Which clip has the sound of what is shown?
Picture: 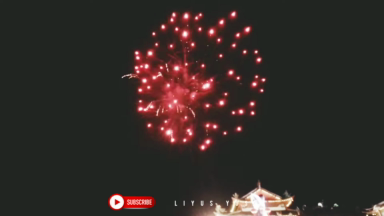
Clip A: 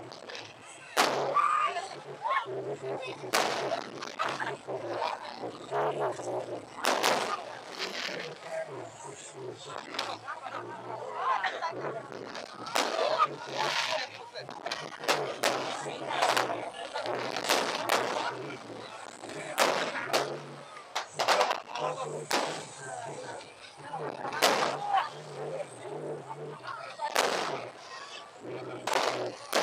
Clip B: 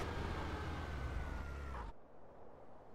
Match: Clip A